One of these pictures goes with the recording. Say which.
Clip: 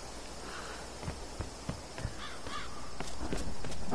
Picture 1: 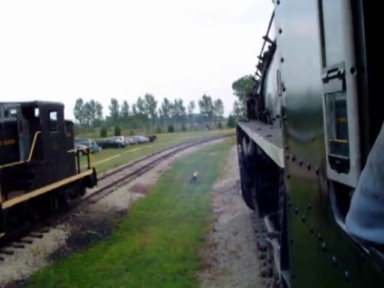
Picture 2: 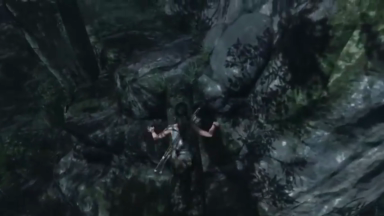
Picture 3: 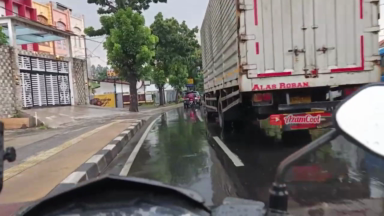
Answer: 2